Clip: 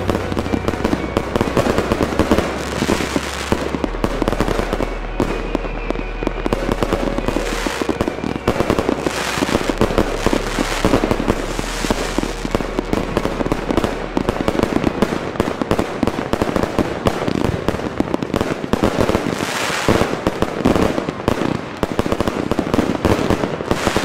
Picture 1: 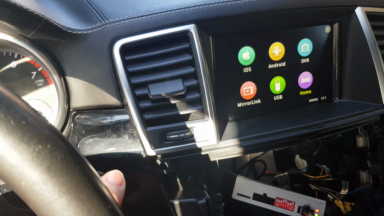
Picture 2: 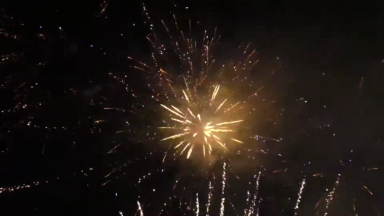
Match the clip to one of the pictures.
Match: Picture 2